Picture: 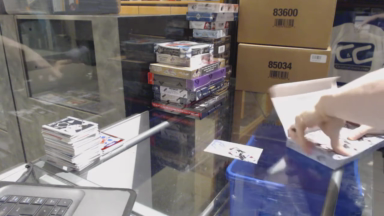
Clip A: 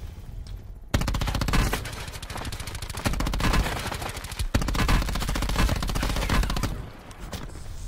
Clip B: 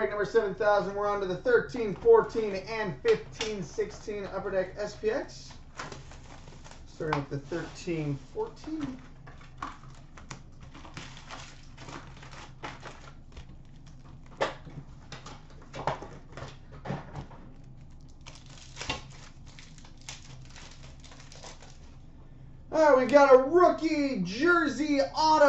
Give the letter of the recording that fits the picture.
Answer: B